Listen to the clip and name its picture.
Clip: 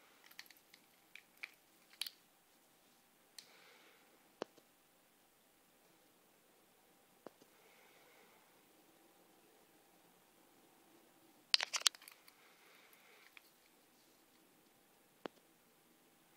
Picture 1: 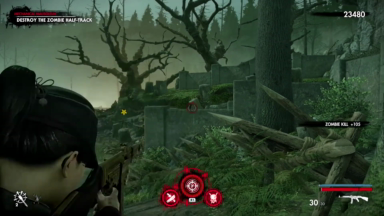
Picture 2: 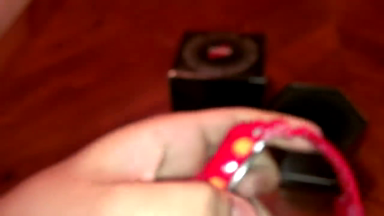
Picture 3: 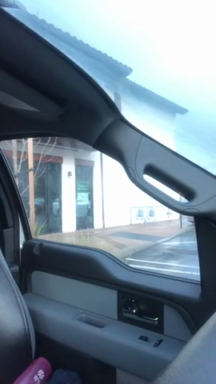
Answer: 2